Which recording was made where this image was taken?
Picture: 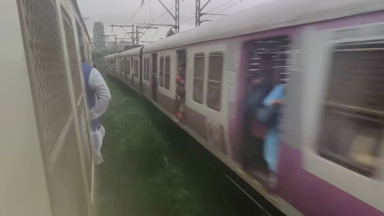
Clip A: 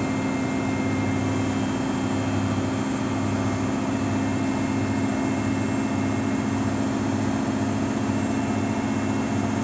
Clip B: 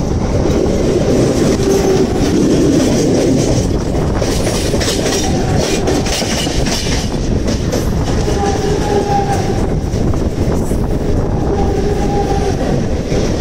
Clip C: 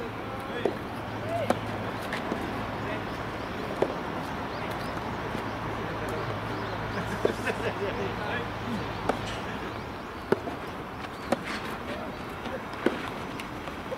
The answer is B